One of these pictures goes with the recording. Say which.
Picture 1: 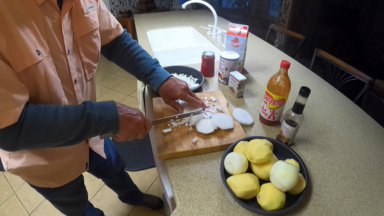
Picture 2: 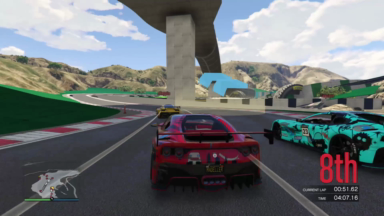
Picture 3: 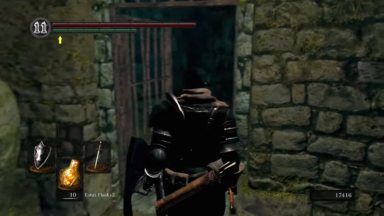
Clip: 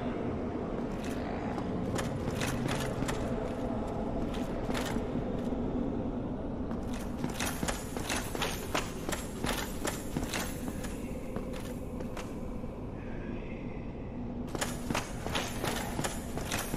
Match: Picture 3